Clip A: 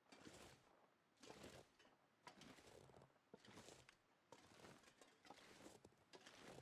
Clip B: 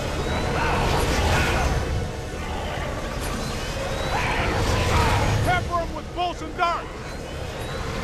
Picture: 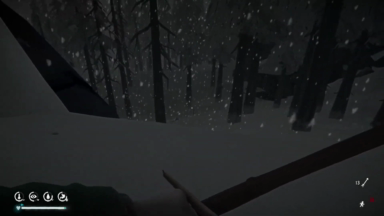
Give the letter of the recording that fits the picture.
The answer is A